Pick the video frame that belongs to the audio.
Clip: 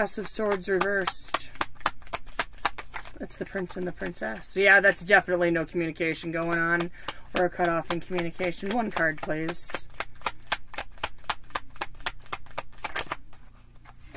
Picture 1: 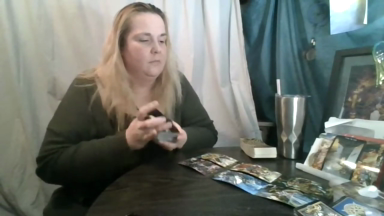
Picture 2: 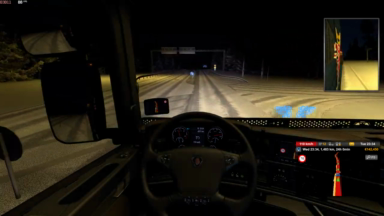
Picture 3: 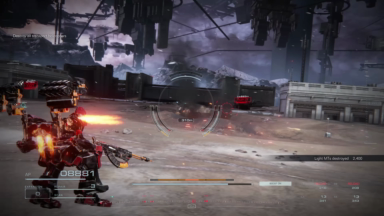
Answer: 1